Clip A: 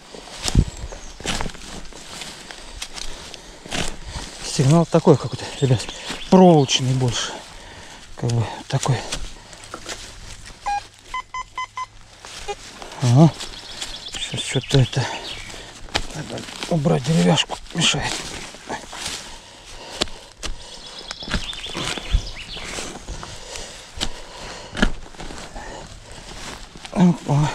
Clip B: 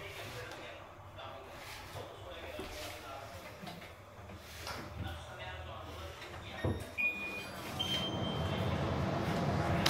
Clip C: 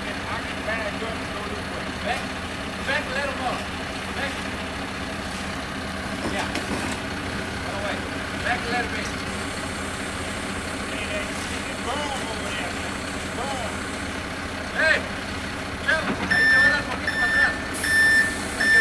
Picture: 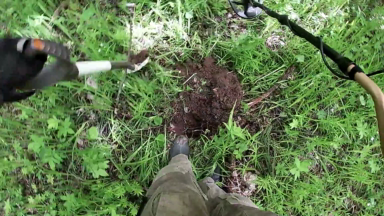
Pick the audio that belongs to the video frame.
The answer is A